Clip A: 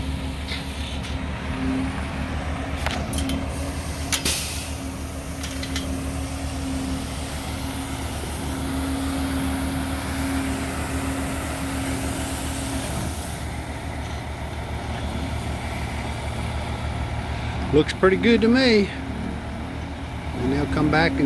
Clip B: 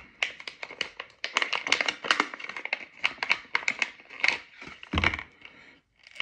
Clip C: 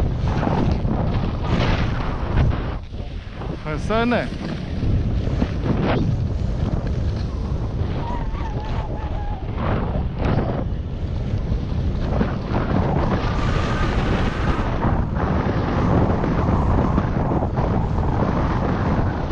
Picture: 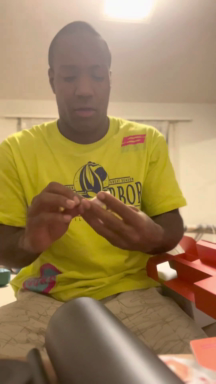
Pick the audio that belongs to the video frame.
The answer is B